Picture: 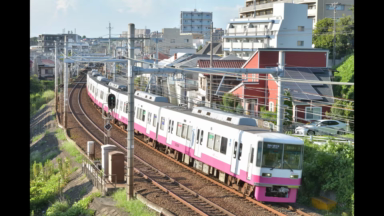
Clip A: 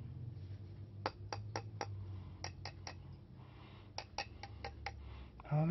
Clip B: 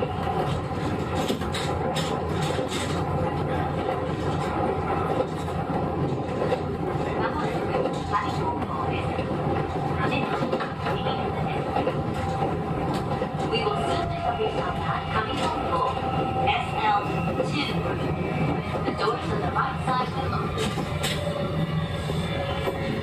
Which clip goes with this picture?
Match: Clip B